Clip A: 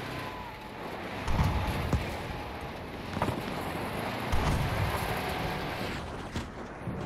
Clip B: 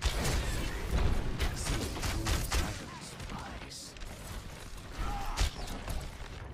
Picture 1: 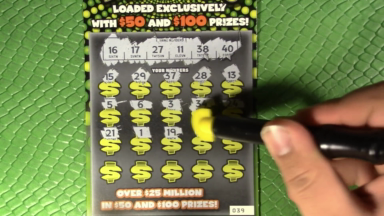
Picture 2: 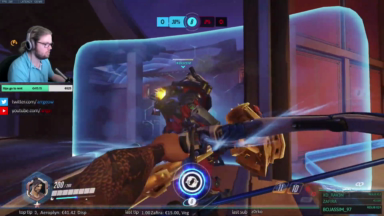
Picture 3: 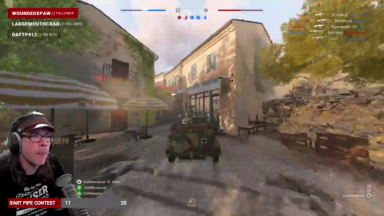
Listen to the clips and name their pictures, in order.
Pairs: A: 3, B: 2